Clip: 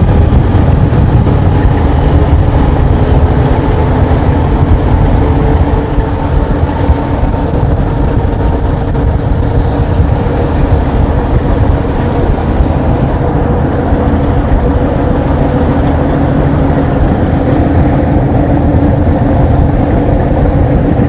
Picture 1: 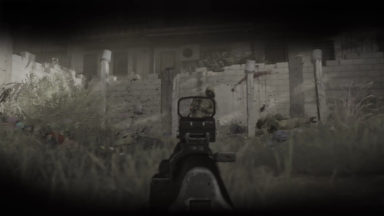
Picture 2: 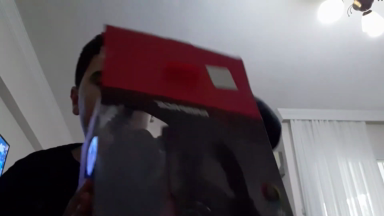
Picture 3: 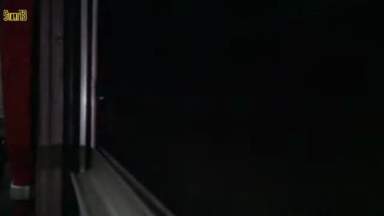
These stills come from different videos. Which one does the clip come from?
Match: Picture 3